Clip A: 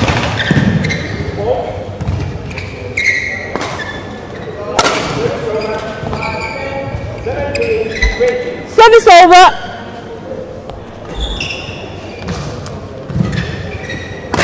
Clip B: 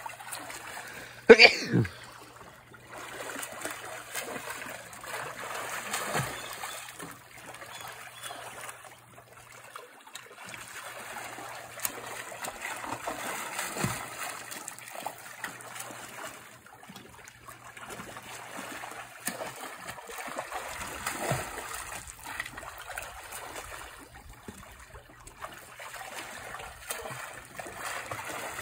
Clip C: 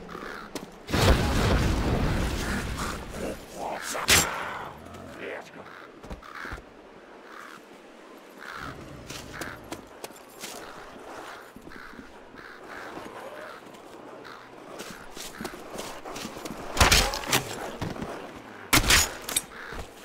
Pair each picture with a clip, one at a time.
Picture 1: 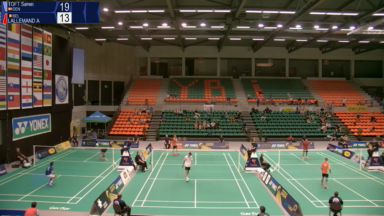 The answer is A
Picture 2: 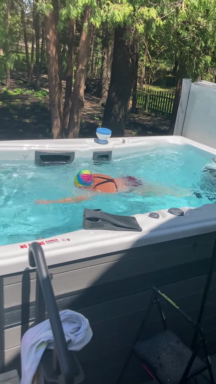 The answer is B